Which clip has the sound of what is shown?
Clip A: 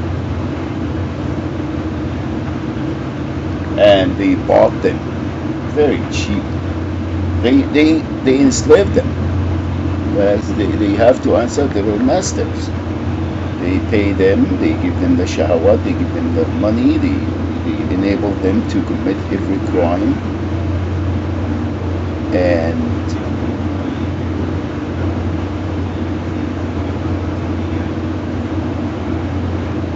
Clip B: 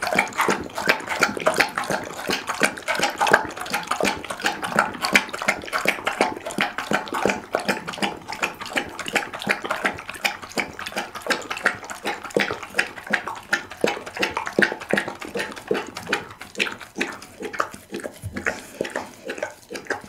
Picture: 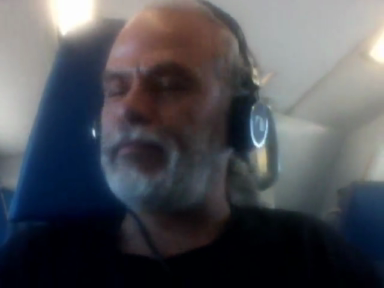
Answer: A